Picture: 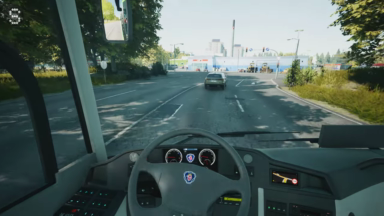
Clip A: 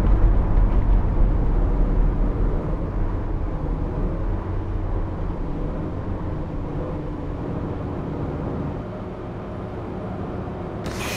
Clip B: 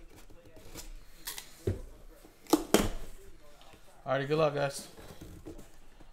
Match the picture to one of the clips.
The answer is A